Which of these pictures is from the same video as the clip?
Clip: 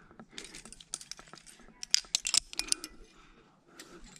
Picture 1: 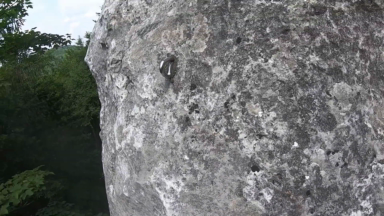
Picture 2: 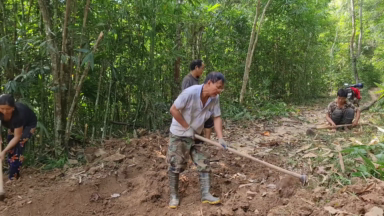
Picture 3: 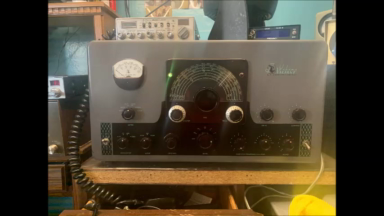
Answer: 1